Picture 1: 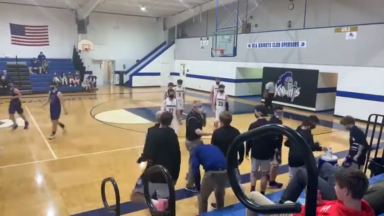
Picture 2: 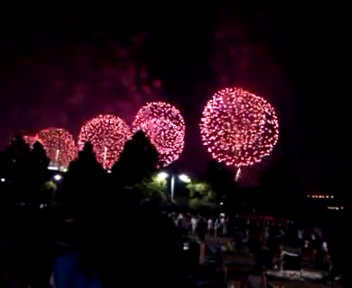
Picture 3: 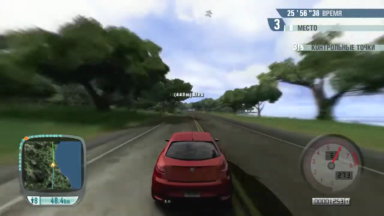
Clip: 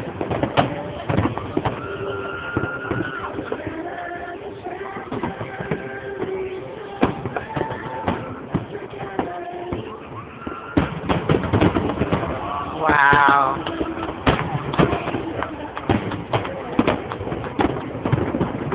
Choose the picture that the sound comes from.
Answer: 2